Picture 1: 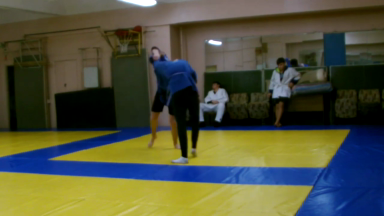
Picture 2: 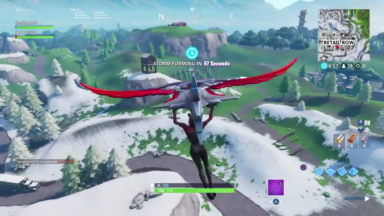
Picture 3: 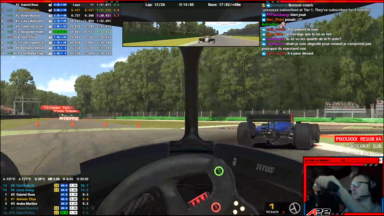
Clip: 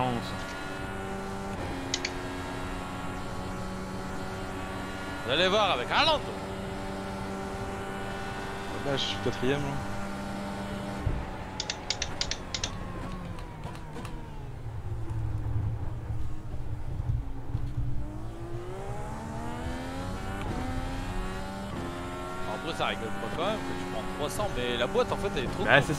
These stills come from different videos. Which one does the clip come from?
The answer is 3